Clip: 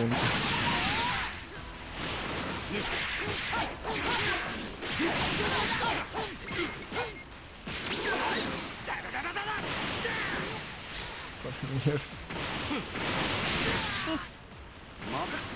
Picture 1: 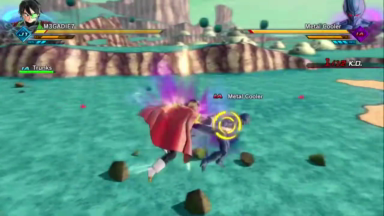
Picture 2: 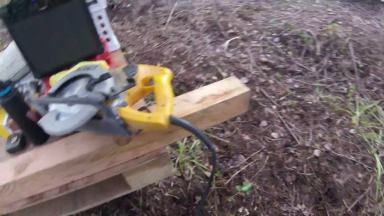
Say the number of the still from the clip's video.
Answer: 1